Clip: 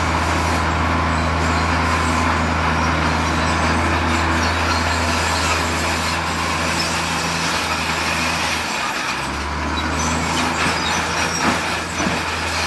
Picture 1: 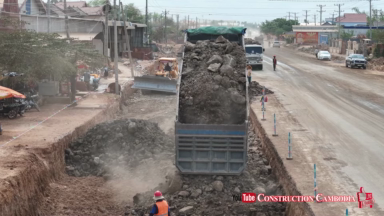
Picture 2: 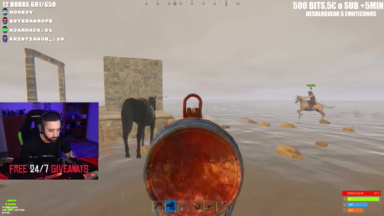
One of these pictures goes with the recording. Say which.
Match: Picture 1